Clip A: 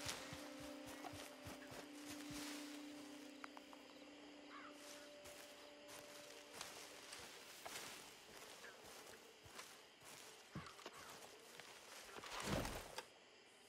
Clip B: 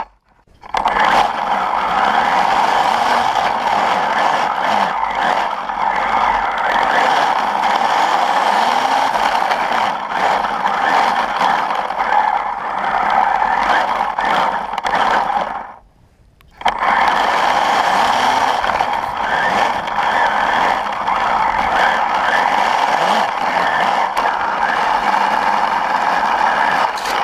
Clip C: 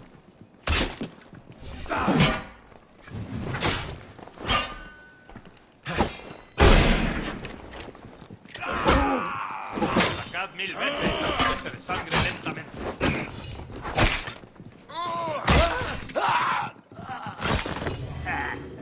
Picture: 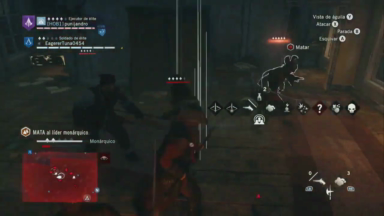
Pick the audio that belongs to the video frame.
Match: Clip C